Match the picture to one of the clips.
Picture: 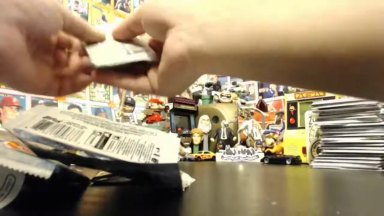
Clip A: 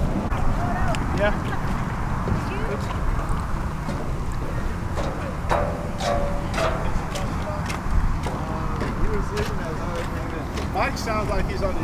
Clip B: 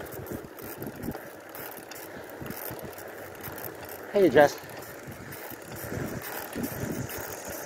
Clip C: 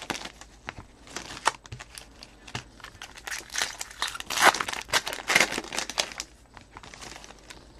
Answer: C